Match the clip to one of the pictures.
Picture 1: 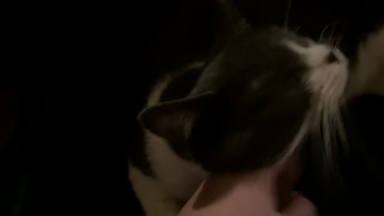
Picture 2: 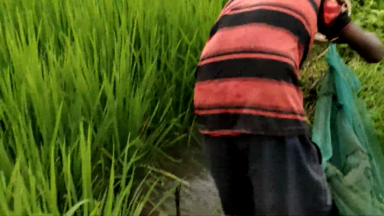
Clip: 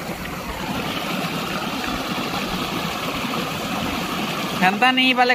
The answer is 2